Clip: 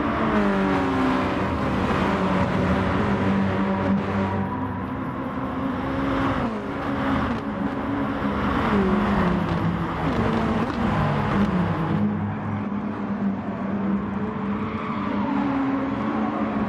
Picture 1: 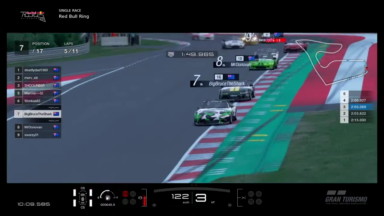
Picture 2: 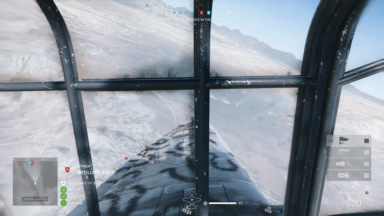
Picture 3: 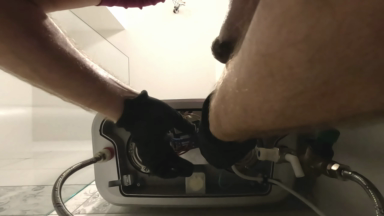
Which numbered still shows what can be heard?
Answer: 1